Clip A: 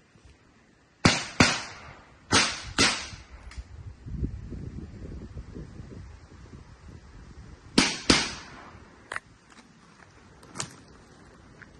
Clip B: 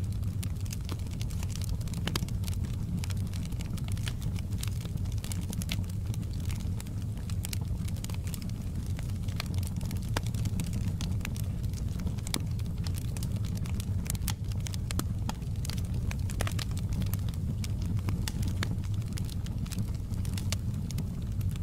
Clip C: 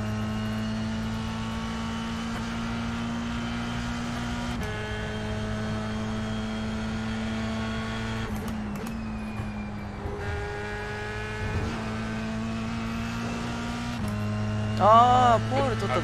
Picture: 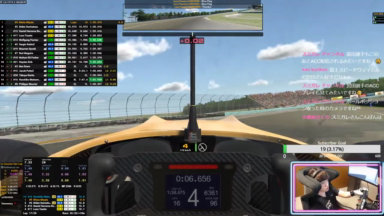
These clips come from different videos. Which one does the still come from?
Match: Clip C